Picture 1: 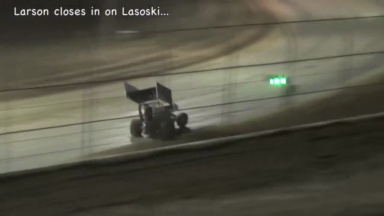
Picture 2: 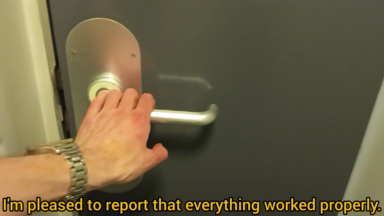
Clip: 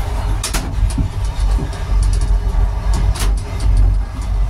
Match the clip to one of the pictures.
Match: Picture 2